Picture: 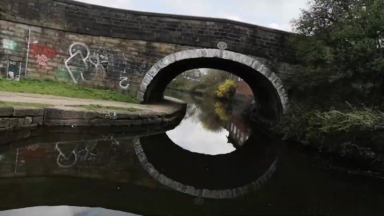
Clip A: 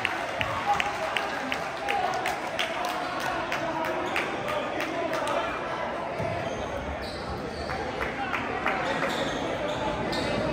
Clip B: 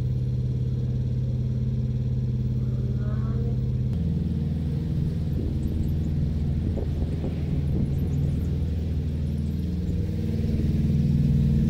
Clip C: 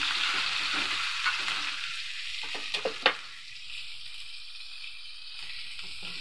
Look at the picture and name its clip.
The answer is B